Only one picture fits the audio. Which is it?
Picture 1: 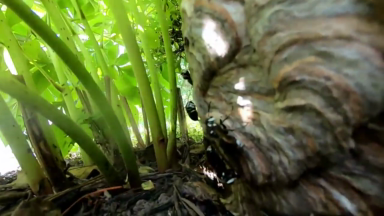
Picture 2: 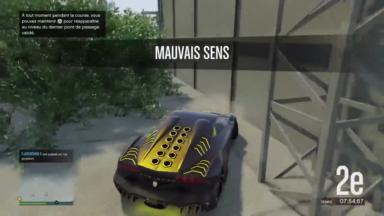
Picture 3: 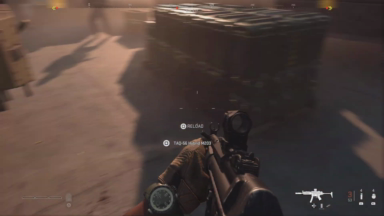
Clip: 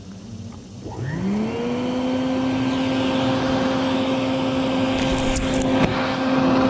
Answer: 1